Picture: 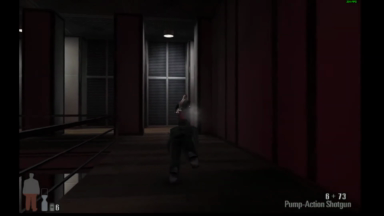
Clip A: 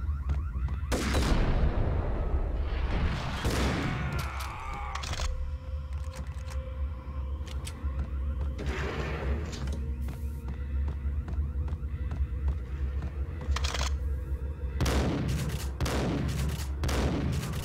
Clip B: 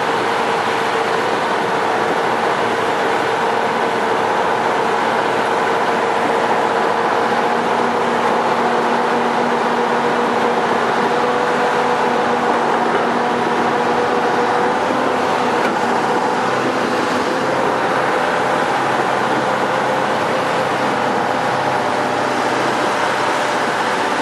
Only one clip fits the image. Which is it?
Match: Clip A